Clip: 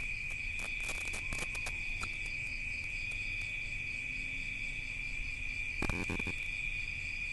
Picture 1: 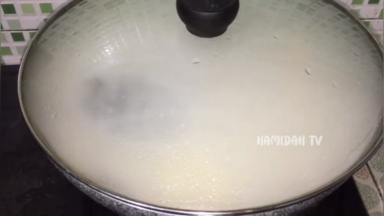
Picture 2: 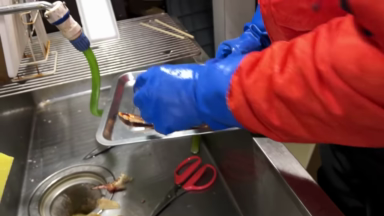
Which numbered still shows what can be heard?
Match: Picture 1